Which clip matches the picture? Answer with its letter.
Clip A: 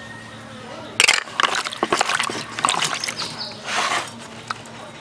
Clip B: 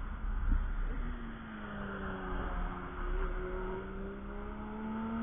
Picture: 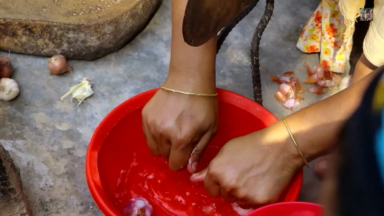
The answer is A